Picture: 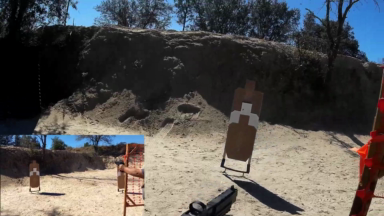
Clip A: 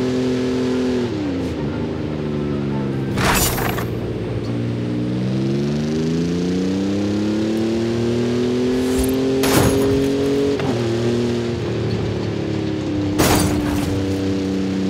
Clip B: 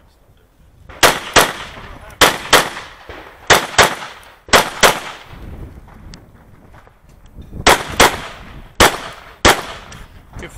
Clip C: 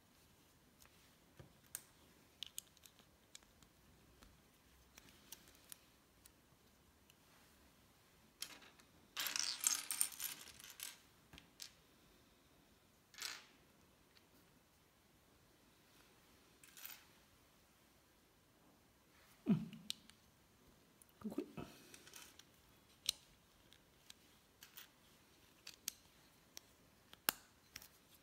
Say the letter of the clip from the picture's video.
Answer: B